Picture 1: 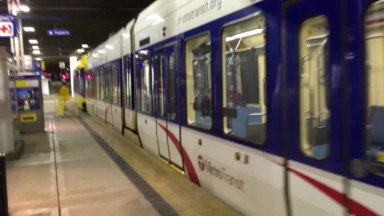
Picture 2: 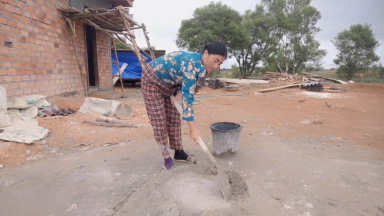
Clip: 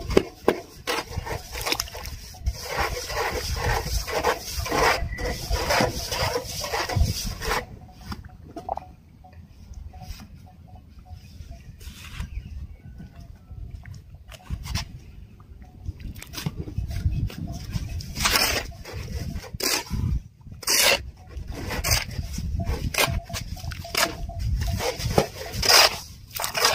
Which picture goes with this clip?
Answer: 2